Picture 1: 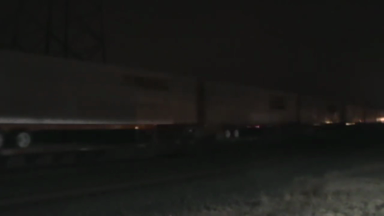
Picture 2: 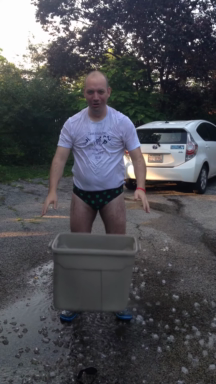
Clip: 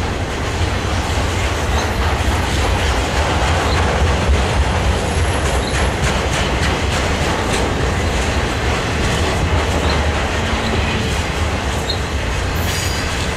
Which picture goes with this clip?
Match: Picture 1